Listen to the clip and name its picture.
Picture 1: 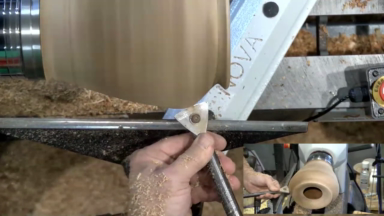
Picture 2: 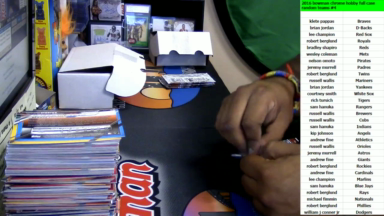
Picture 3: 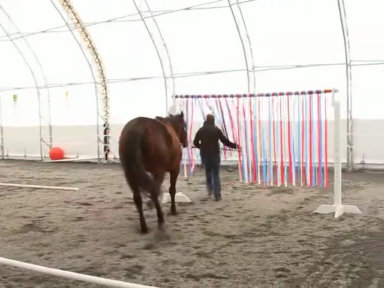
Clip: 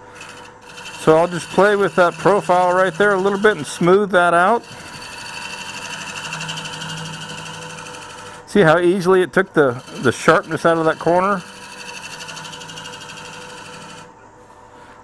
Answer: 1